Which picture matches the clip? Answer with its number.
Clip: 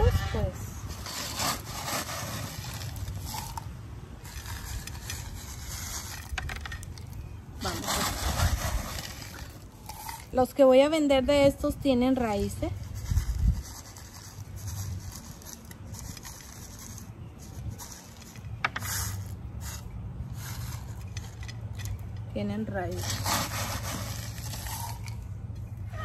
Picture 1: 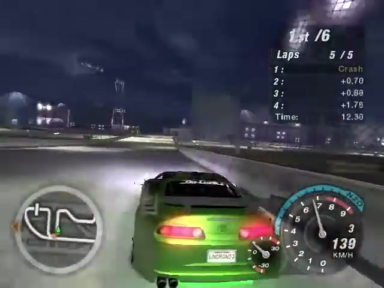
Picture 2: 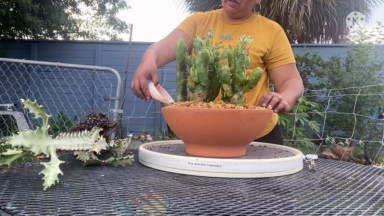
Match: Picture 2